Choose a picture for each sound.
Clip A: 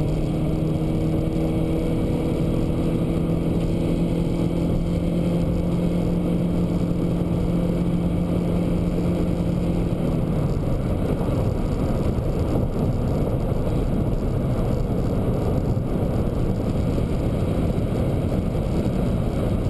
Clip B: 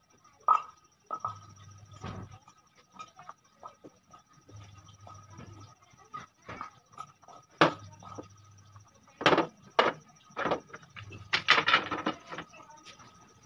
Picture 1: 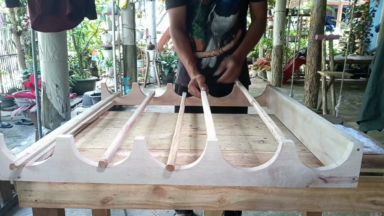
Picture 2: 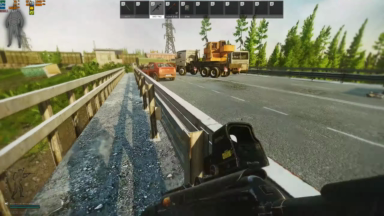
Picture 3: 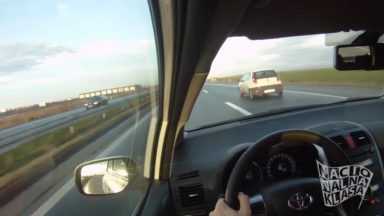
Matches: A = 3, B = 1